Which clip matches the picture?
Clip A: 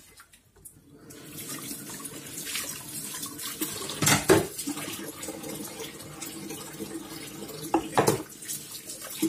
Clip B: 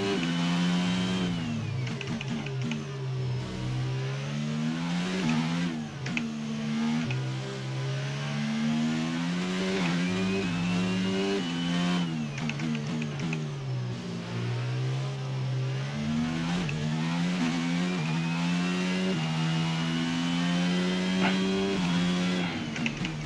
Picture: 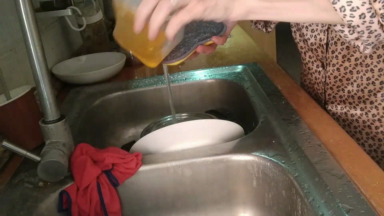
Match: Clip A